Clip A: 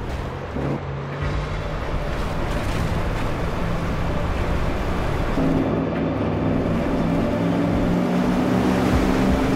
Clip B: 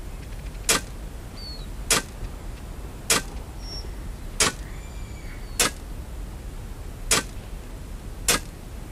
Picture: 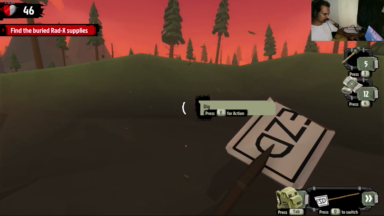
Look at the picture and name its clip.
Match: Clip B